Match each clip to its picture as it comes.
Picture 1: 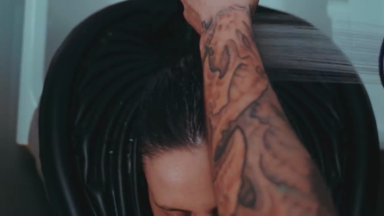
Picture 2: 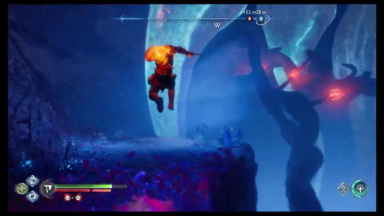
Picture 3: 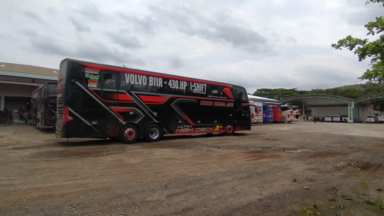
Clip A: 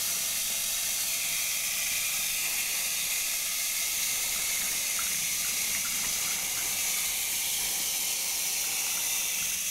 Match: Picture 1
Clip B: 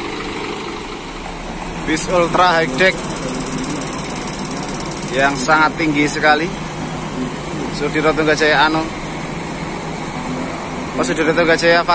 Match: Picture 3